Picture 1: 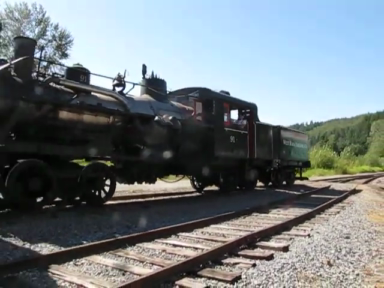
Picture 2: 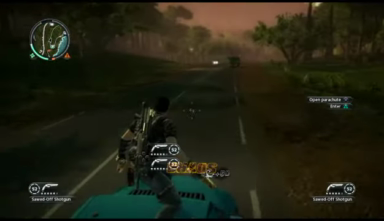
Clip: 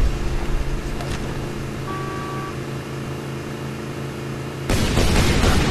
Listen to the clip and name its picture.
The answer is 2